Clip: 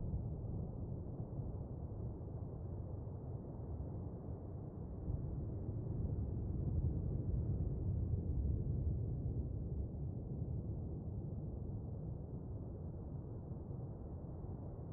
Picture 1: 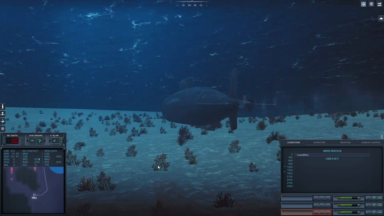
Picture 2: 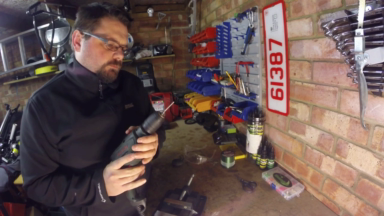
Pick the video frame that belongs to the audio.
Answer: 1